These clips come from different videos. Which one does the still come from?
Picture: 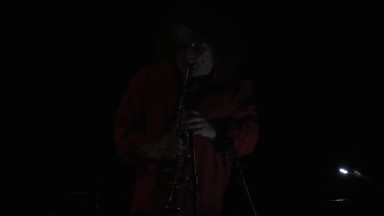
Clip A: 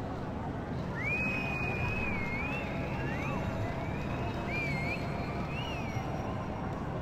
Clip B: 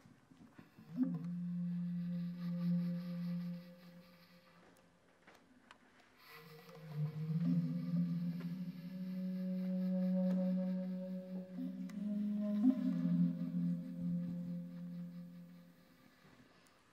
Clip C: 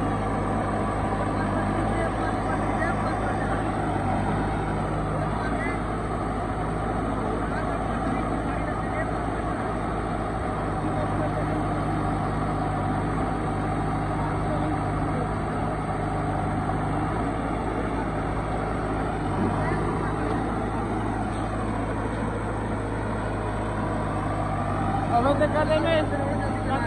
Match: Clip B